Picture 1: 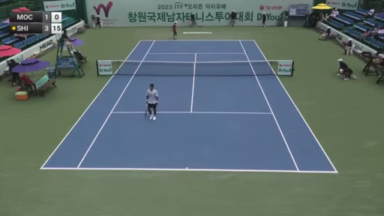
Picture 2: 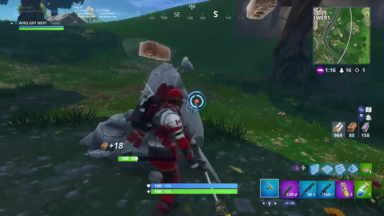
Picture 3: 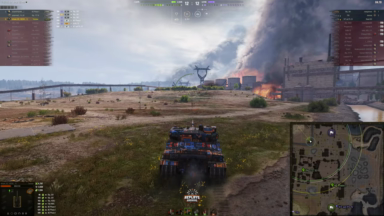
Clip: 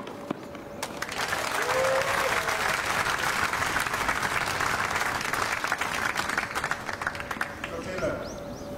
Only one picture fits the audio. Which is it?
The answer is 1